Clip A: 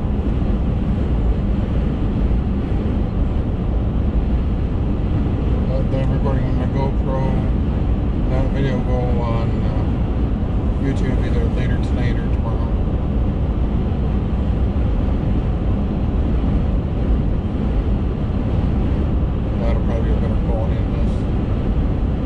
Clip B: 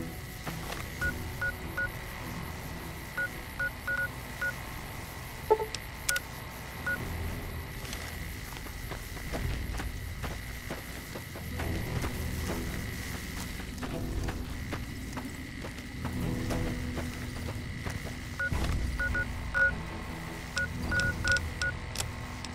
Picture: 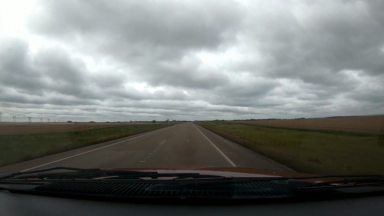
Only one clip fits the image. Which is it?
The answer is A